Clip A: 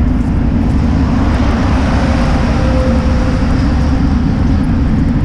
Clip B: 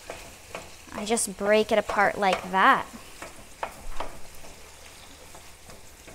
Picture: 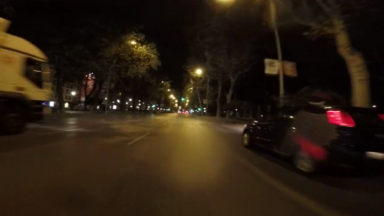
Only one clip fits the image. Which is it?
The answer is A